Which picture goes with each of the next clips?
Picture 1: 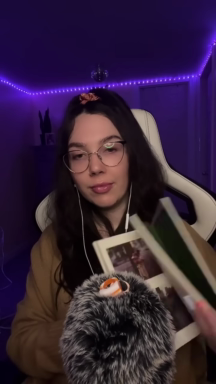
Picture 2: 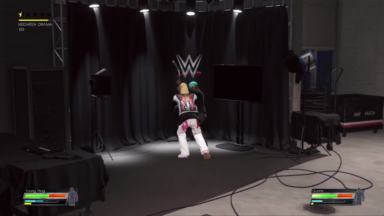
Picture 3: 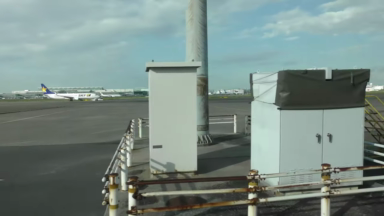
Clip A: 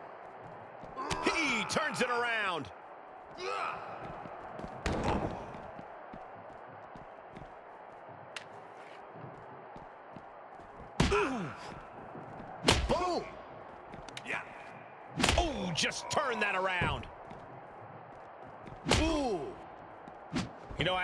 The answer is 2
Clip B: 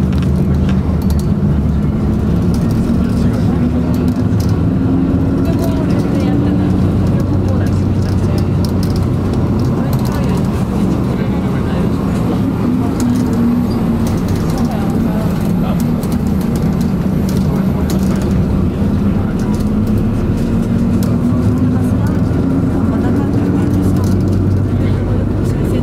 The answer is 3